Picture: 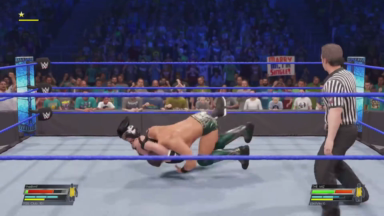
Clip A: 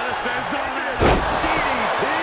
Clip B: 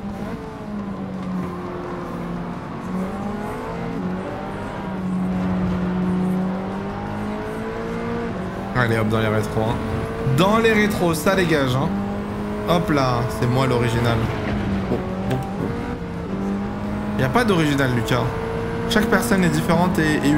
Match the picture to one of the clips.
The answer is A